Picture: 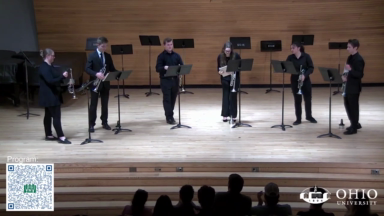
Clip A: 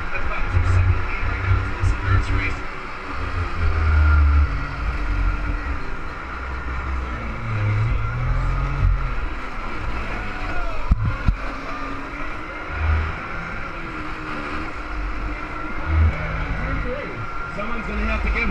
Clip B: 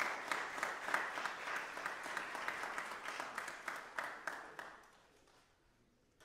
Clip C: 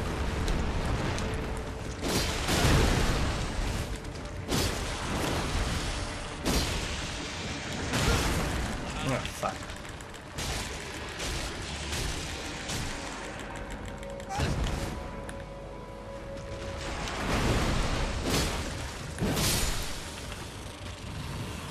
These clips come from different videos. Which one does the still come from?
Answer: B